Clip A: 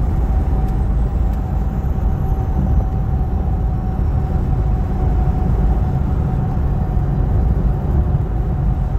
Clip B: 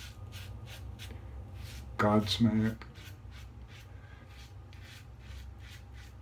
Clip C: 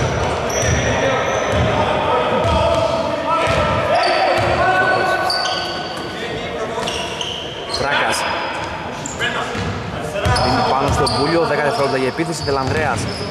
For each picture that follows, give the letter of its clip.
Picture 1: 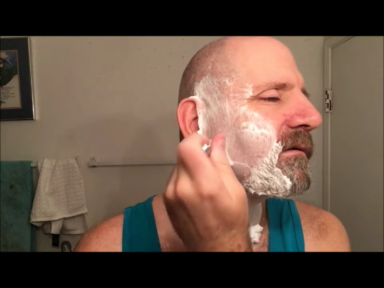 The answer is B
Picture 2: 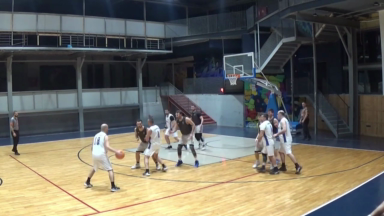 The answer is C